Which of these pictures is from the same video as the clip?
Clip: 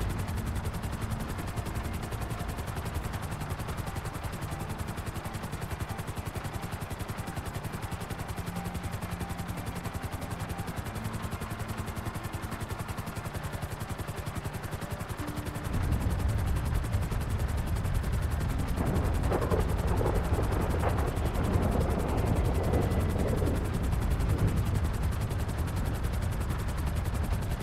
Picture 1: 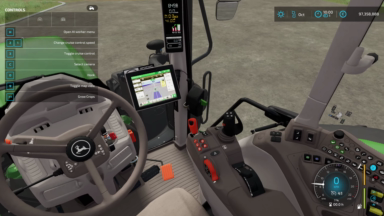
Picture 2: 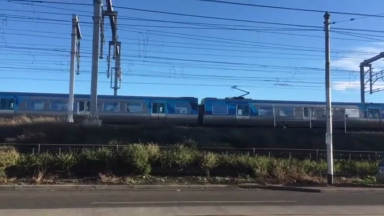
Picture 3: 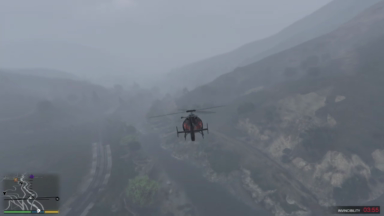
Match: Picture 3